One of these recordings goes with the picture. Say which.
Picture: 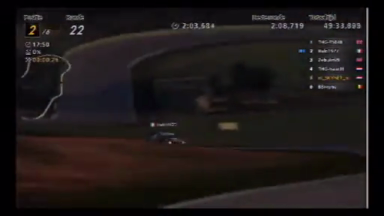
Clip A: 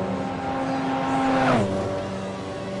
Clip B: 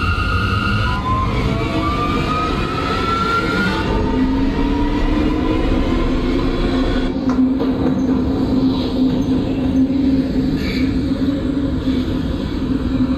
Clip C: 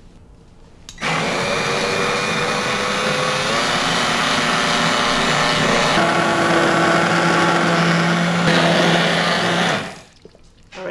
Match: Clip A